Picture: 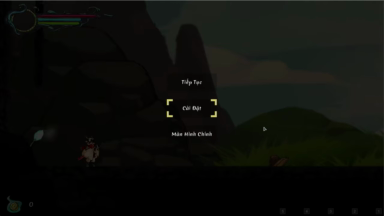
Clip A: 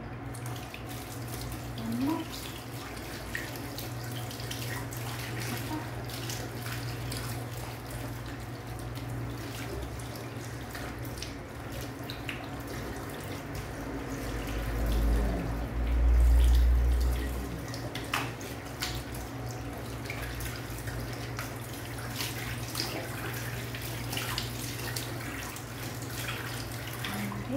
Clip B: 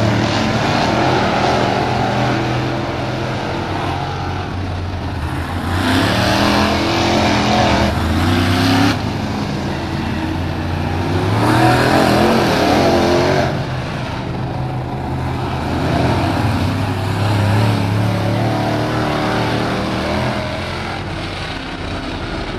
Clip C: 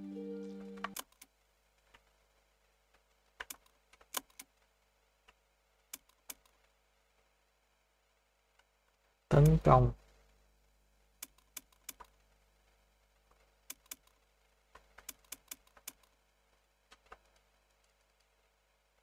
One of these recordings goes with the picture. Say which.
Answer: C